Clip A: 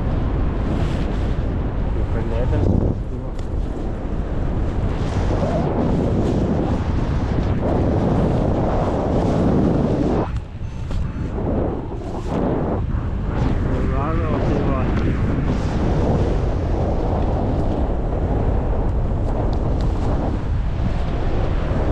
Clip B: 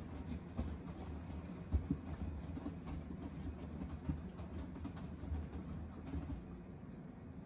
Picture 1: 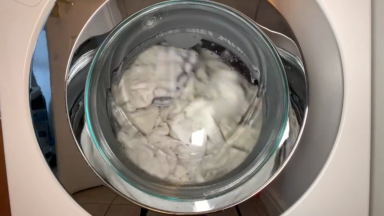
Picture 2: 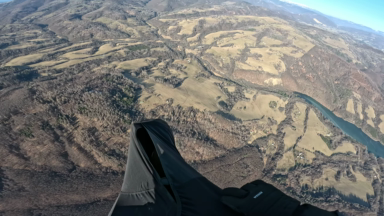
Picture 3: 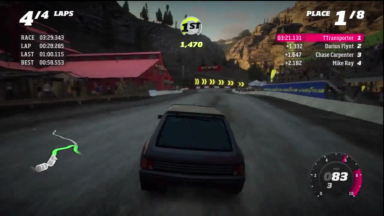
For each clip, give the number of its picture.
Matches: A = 2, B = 1